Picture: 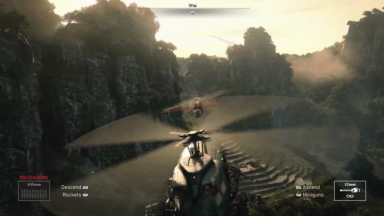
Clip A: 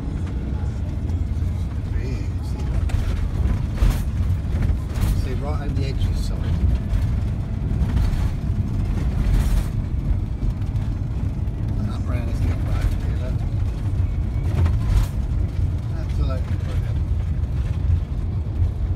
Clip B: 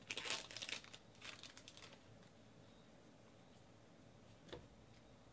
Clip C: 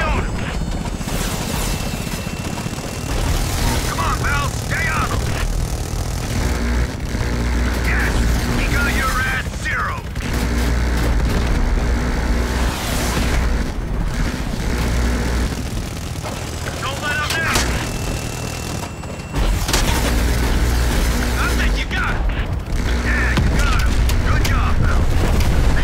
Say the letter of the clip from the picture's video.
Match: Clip C